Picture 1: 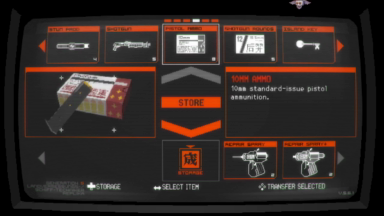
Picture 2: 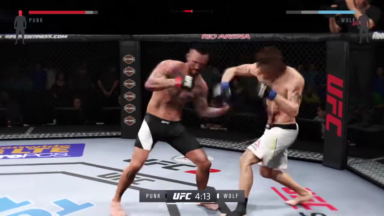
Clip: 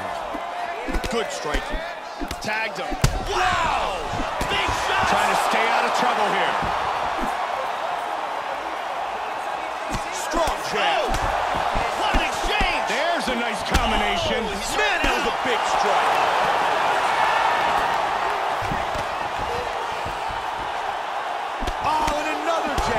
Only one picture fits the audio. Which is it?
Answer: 2